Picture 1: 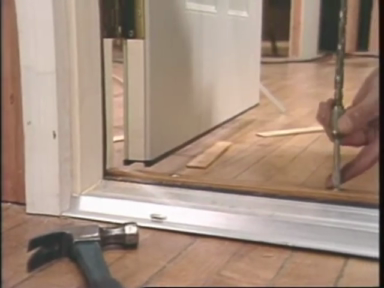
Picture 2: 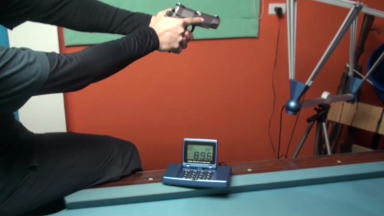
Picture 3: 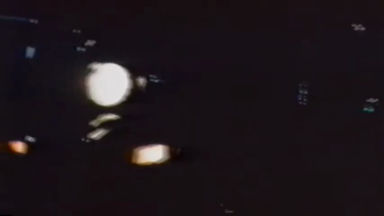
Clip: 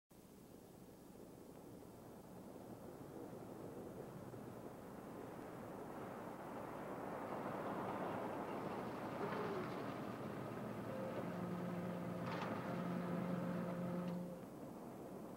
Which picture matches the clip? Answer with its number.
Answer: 3